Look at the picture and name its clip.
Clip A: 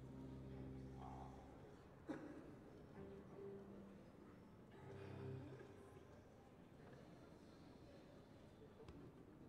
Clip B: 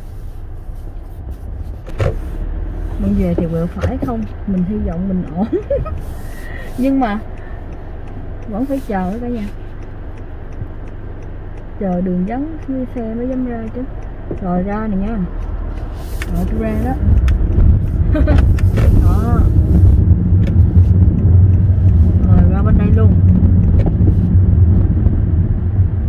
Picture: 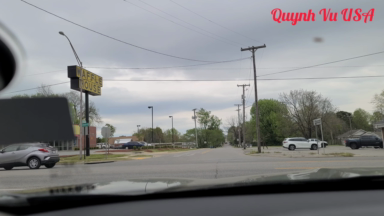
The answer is B